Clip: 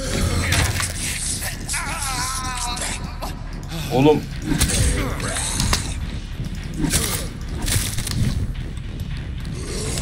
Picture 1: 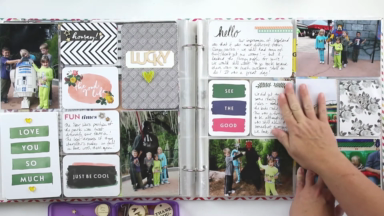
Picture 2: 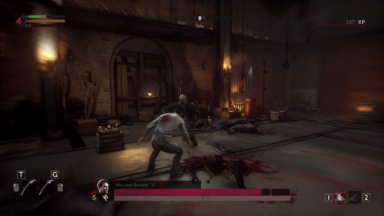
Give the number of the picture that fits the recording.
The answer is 2